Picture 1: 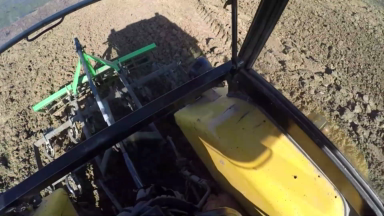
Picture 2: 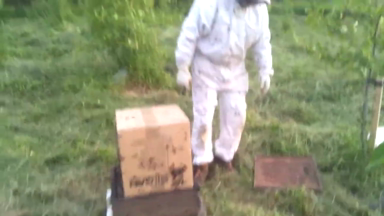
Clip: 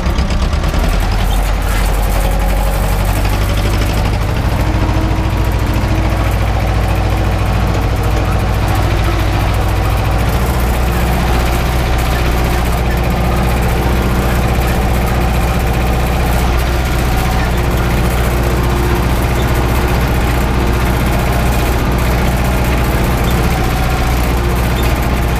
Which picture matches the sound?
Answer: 1